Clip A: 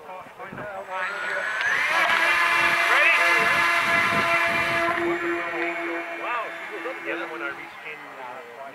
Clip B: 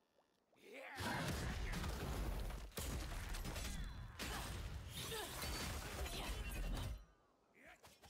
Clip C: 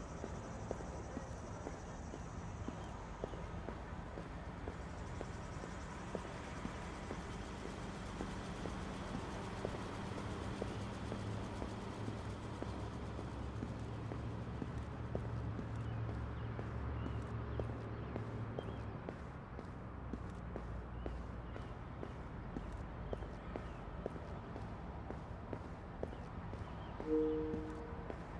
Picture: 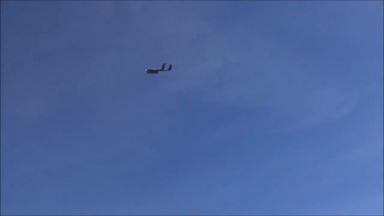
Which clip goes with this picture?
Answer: A